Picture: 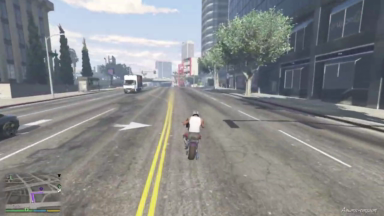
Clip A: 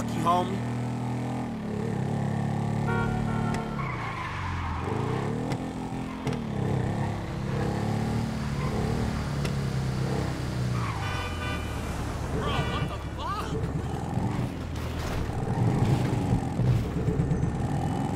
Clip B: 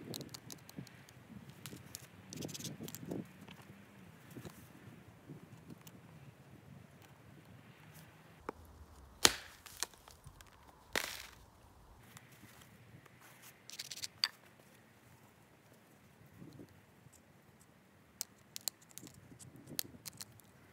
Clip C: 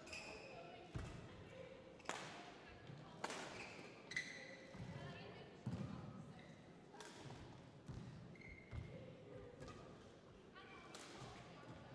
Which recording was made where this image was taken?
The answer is A